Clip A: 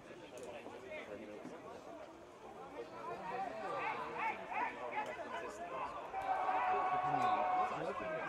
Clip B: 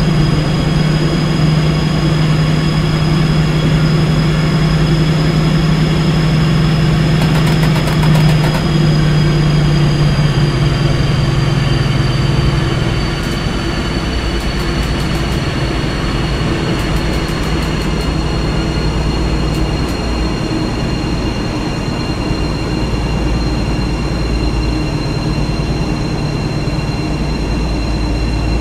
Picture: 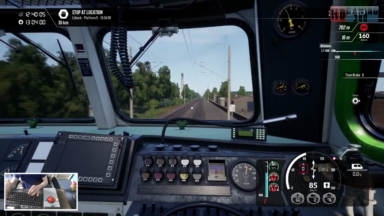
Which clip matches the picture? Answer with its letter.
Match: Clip B